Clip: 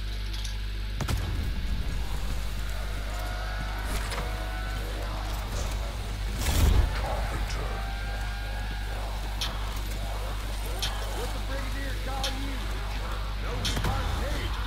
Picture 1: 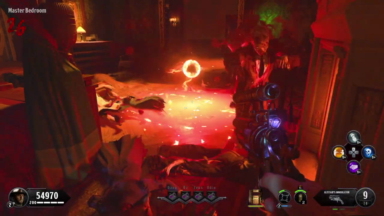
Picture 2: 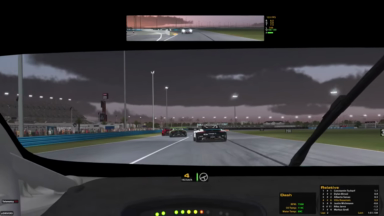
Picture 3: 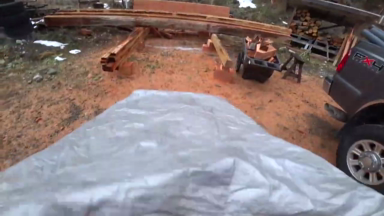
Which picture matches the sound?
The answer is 1